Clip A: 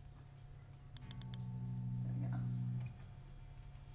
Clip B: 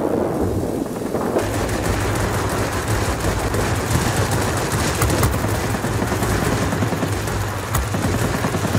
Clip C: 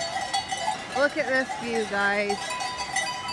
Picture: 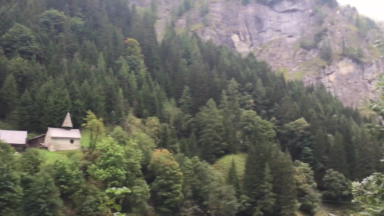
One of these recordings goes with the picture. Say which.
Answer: C